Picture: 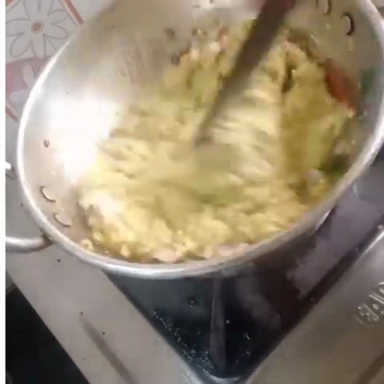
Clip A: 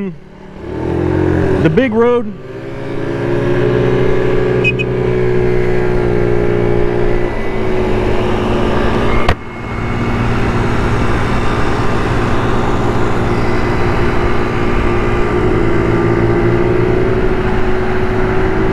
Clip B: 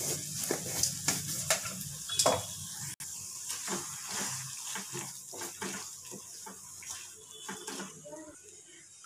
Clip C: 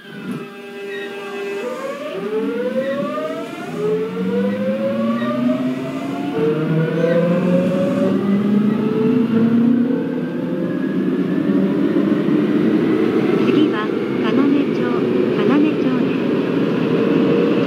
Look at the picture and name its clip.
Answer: B